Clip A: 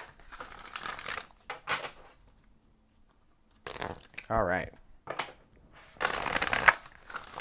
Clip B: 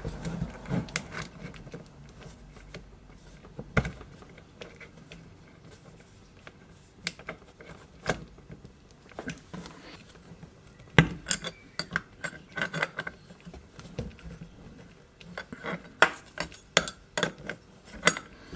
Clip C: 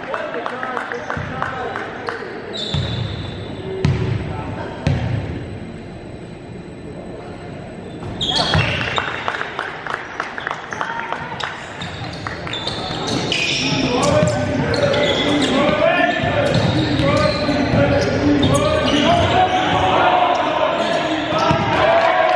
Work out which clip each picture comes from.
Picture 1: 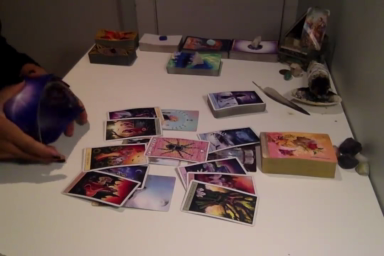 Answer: A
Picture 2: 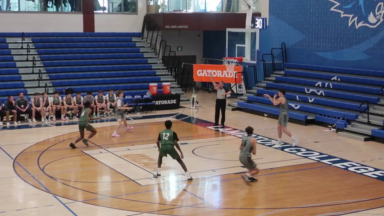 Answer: C